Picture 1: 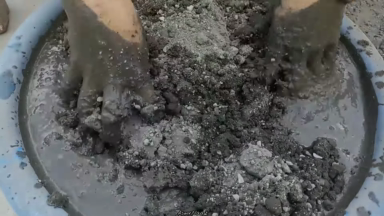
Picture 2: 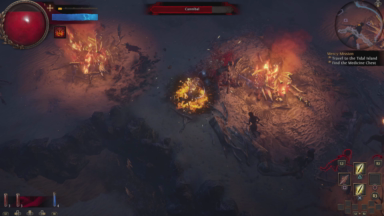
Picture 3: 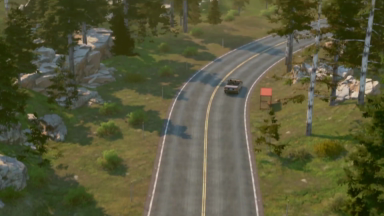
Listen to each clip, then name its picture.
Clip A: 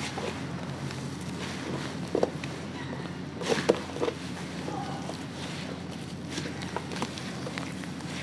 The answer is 1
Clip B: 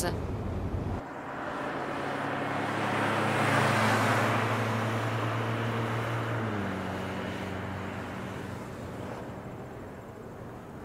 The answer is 3